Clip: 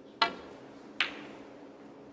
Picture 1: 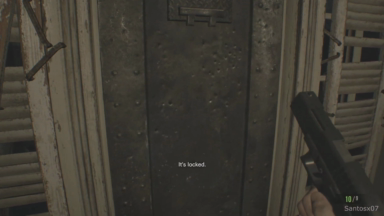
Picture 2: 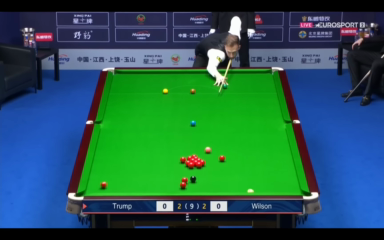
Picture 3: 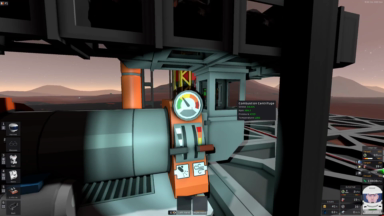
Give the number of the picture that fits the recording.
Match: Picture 2